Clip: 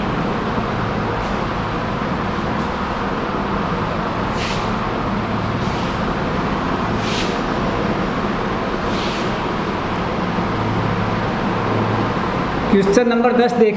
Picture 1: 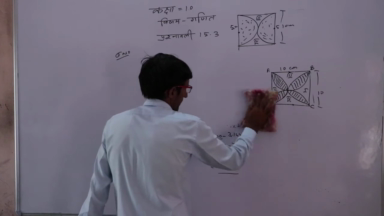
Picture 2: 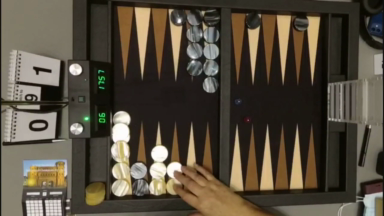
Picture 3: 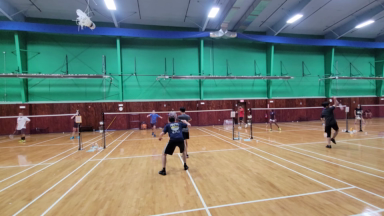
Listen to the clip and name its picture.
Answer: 1